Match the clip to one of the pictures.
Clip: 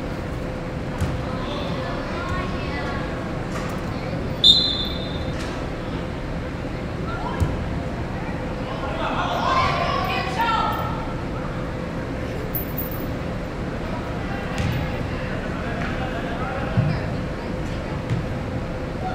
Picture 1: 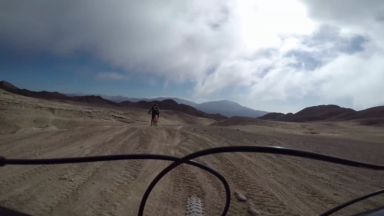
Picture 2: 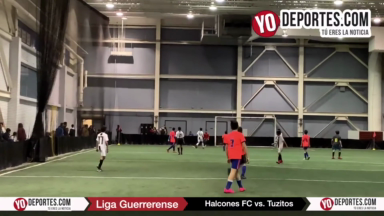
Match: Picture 2